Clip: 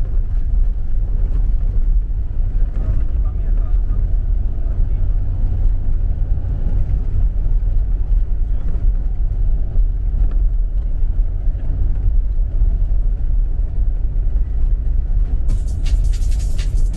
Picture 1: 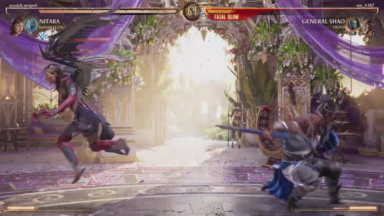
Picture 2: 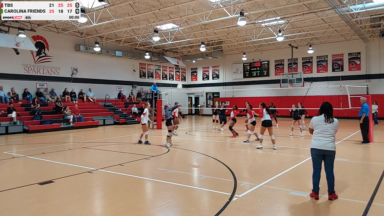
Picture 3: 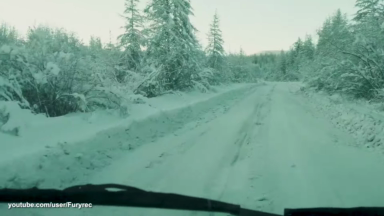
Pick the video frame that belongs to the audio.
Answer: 3